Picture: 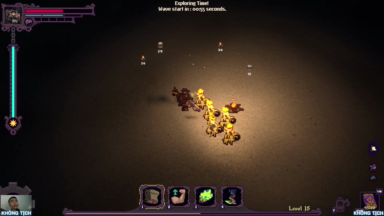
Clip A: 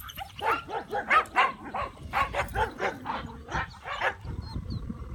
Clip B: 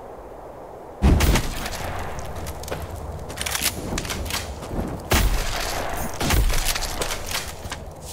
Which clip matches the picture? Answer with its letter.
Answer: B